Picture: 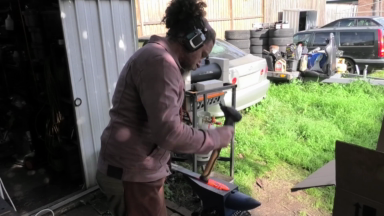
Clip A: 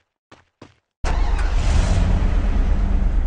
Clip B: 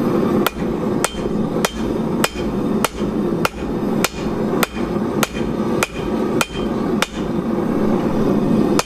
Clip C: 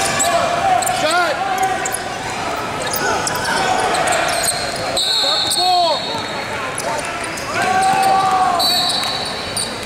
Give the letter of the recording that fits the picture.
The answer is B